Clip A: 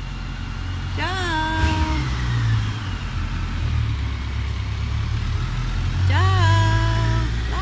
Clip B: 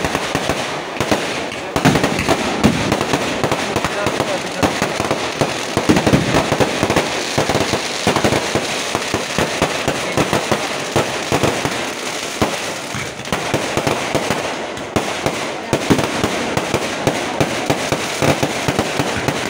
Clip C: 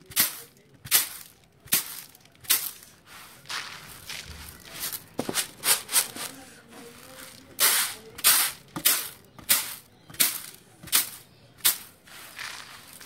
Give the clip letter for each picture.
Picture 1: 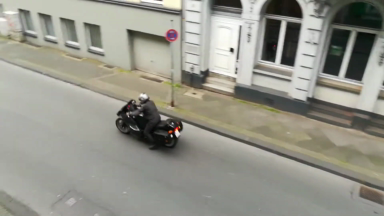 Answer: A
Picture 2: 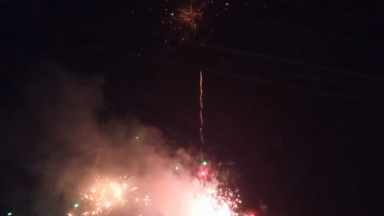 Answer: B